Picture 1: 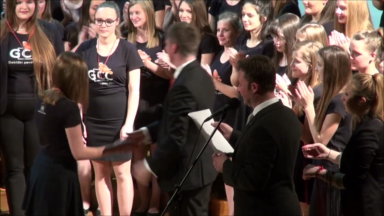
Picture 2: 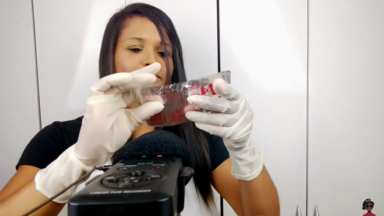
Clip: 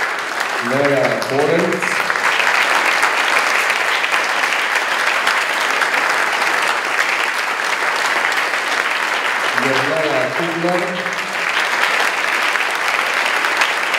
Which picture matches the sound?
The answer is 1